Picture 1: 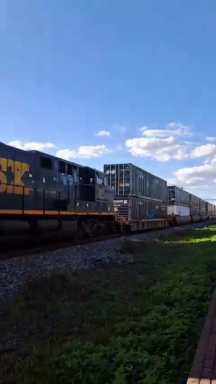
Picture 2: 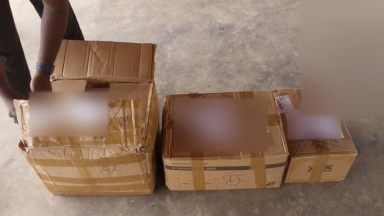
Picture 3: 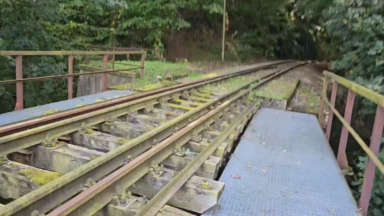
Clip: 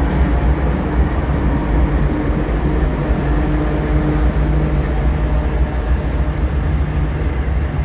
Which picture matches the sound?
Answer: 1